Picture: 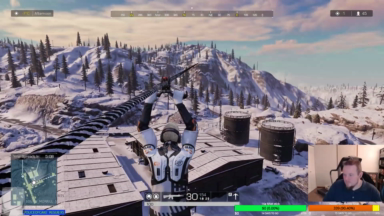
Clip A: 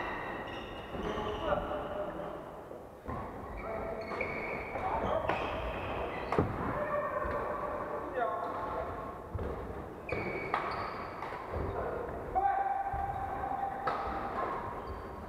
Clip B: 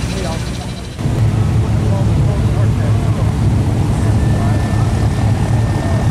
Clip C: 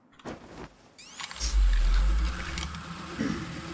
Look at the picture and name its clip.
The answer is C